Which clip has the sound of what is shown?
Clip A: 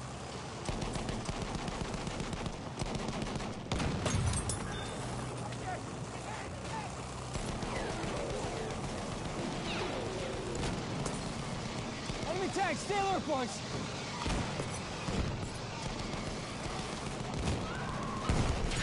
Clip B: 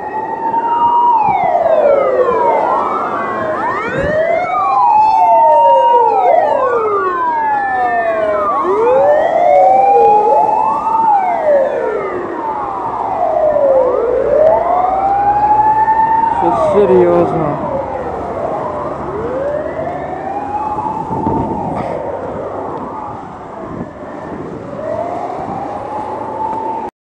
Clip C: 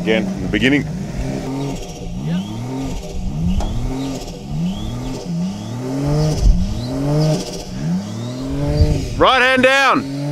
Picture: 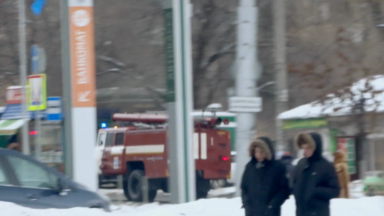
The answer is B